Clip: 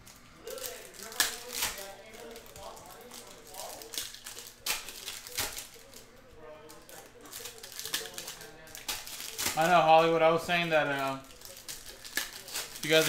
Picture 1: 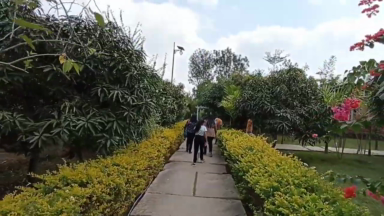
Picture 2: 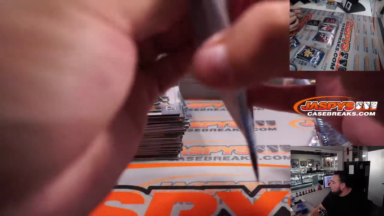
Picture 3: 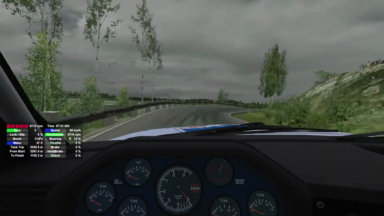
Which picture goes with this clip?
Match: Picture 2